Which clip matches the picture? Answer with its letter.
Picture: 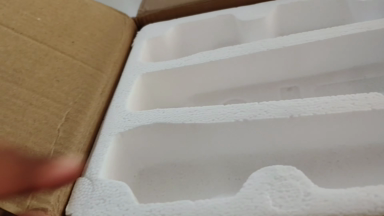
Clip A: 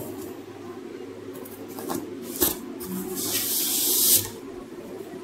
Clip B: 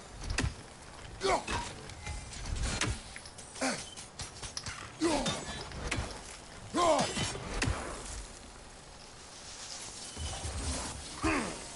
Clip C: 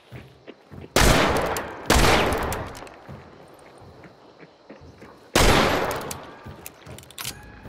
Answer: A